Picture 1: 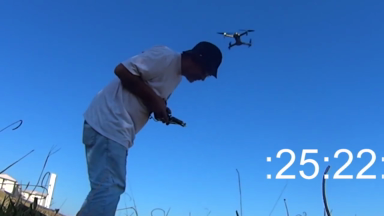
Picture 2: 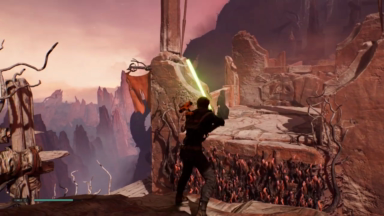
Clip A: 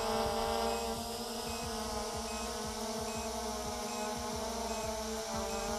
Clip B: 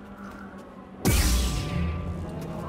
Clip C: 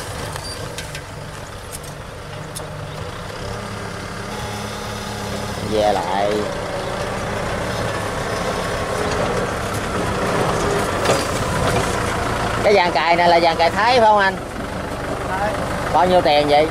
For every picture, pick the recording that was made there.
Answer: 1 A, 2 B